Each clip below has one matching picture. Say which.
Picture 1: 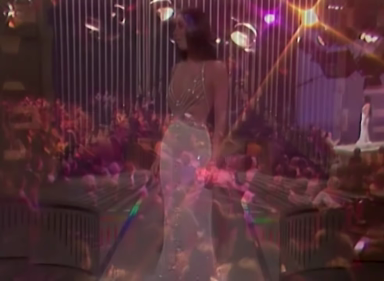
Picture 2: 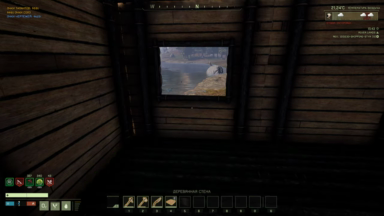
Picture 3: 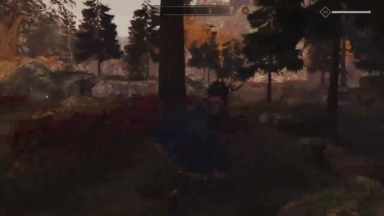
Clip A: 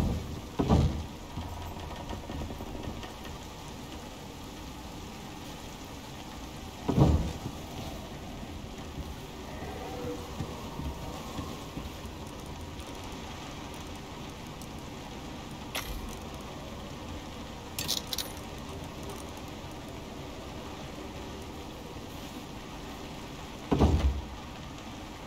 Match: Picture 2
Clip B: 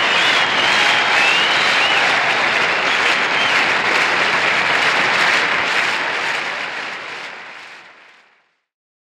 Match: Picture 1